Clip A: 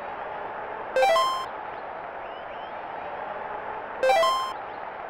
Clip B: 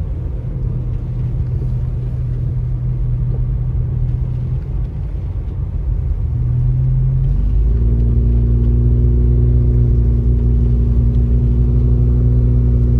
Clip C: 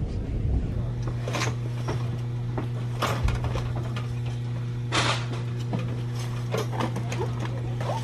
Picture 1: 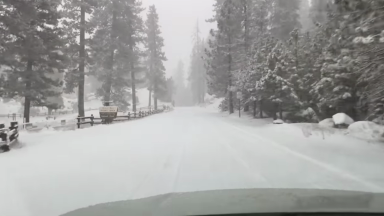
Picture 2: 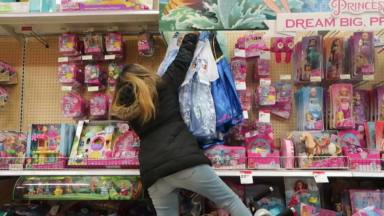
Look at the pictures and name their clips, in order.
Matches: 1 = B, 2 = C